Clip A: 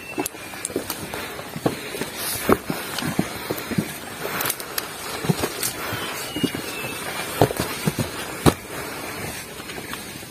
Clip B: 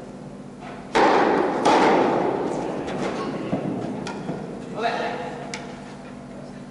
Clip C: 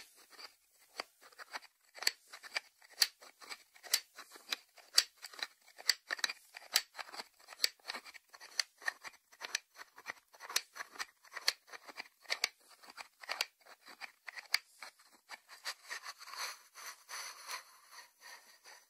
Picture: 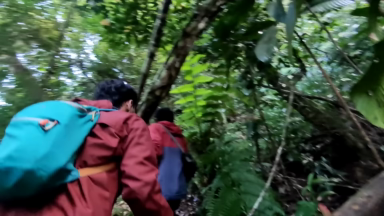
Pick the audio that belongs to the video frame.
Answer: A